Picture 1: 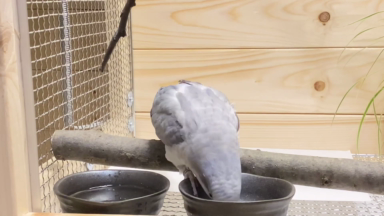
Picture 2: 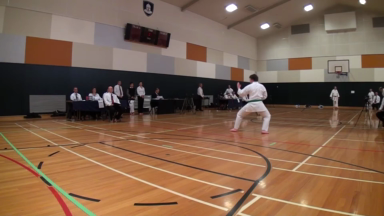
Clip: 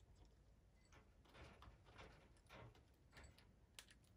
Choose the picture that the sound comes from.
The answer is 1